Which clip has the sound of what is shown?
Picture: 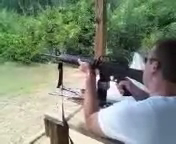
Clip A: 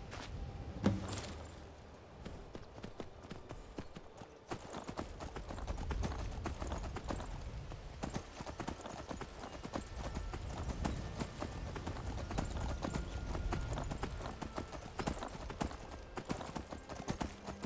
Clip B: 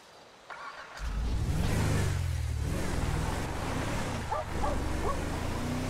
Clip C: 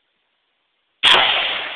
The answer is C